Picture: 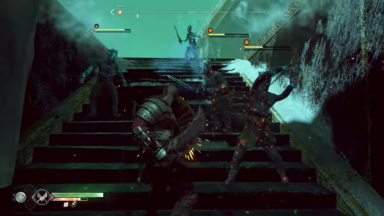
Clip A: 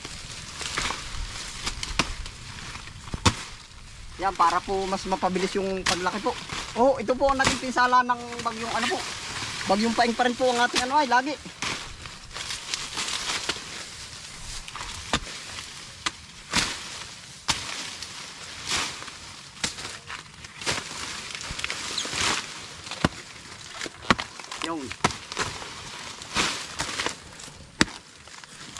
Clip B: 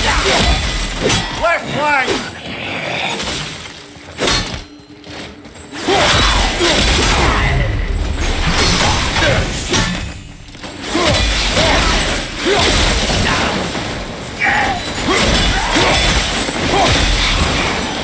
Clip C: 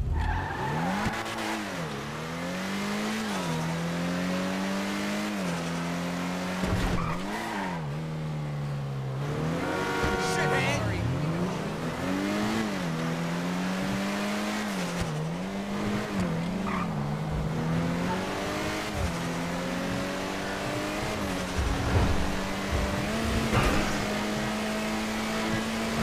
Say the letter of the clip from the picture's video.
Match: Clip B